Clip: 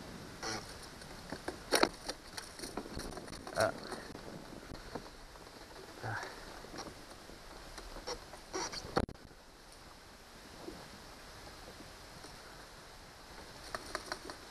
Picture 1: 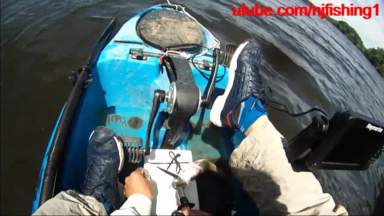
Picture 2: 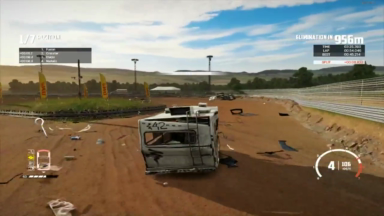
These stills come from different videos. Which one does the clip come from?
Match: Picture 1